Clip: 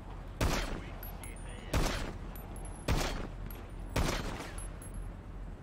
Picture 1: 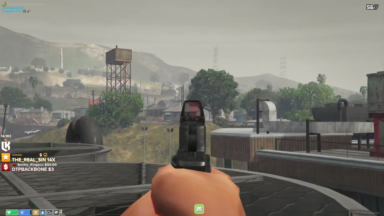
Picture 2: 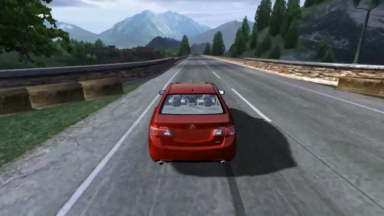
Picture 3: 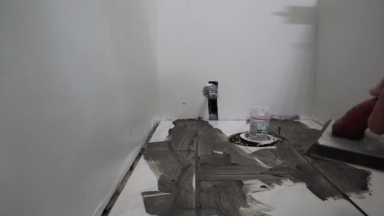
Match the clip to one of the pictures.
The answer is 1